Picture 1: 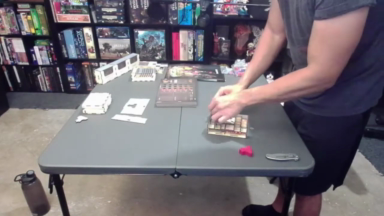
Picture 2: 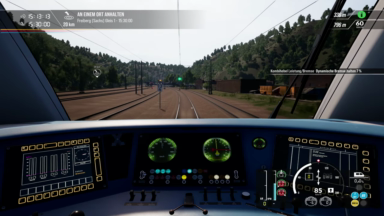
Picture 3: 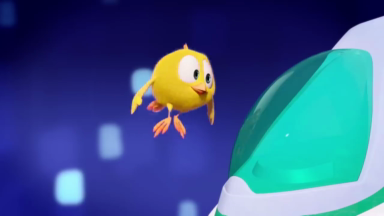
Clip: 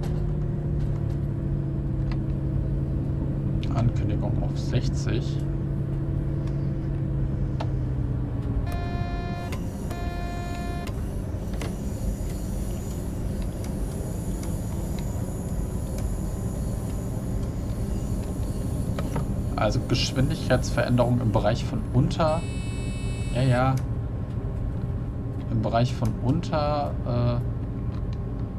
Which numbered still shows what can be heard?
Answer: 2